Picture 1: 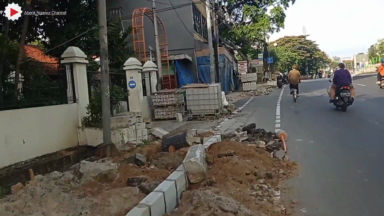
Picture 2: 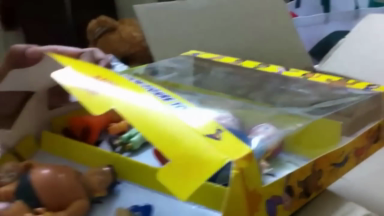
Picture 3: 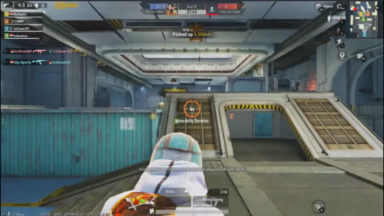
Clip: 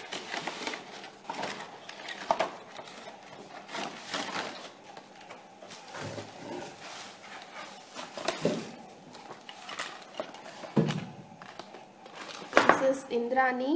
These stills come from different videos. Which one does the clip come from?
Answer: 2